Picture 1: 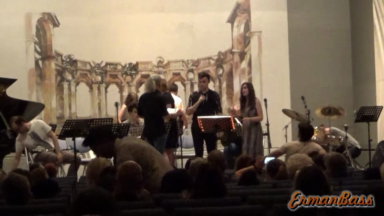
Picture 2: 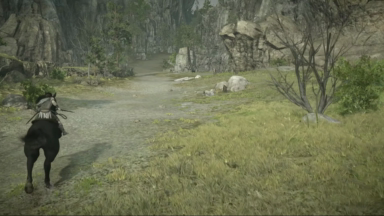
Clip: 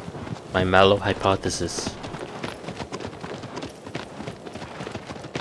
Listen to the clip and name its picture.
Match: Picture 2